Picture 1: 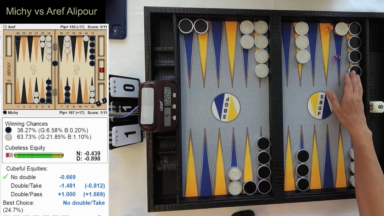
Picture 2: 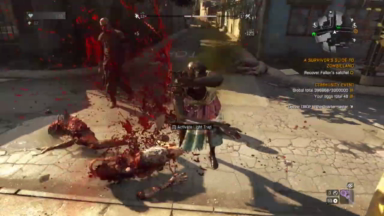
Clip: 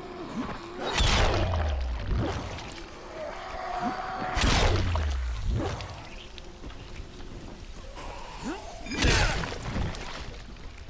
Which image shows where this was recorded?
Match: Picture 2